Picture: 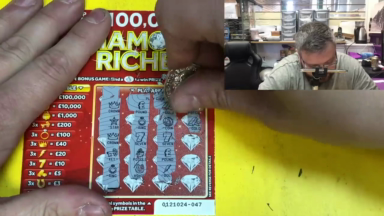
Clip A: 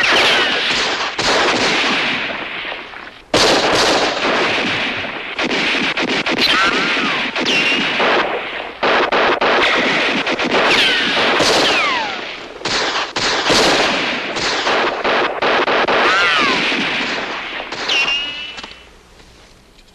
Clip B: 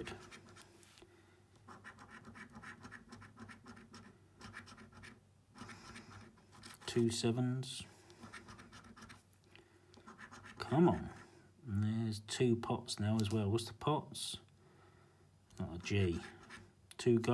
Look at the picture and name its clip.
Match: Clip B